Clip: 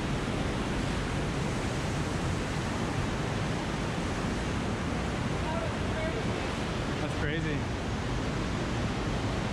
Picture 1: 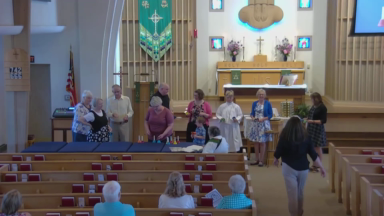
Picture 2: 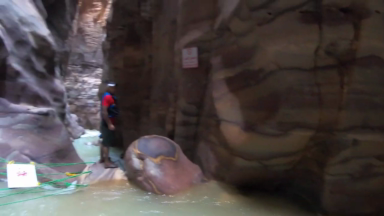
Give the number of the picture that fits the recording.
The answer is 2